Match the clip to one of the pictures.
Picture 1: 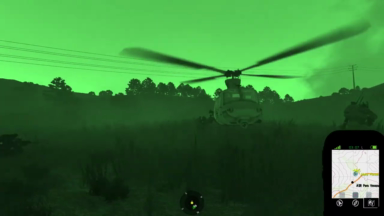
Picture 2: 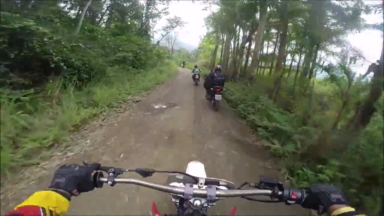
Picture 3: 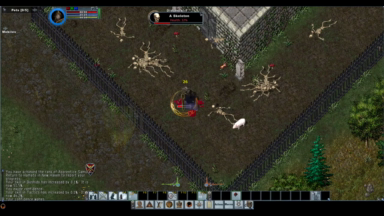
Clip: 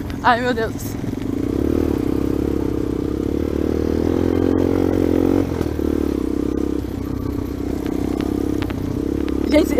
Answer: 2